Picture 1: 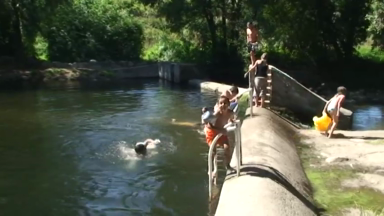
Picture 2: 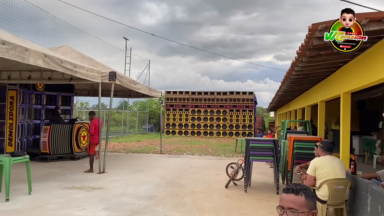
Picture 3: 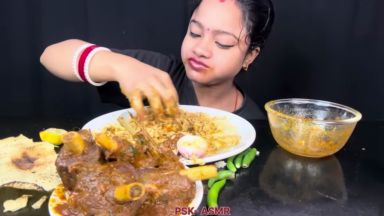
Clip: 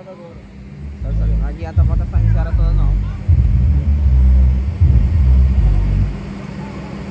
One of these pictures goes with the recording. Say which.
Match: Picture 2